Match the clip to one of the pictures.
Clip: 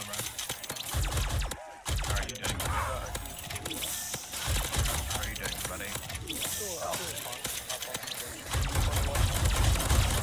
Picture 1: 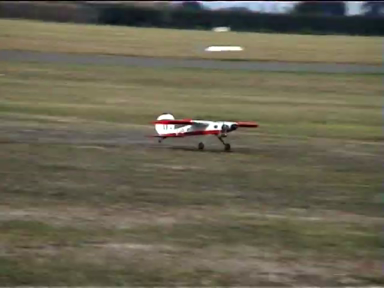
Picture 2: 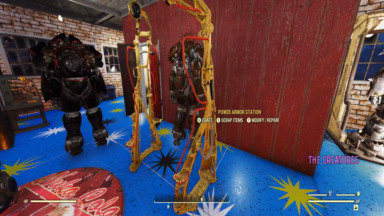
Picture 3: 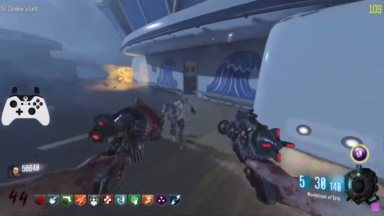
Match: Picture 3